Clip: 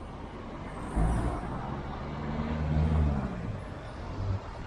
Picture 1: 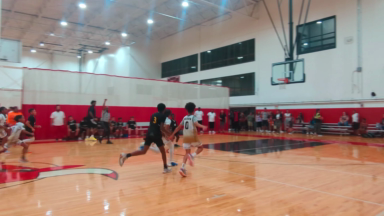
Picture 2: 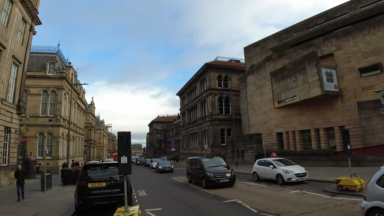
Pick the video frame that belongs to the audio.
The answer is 2